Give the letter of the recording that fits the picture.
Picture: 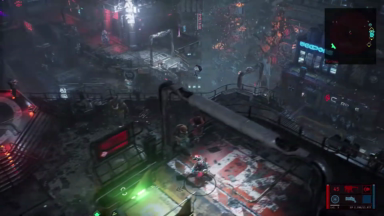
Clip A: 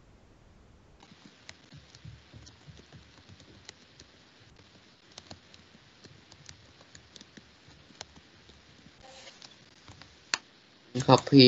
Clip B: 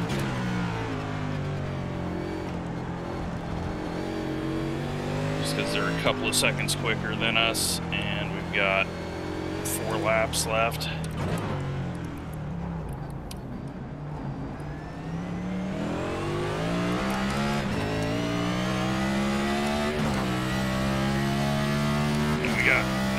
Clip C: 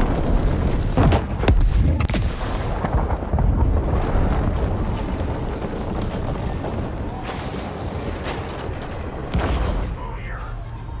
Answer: C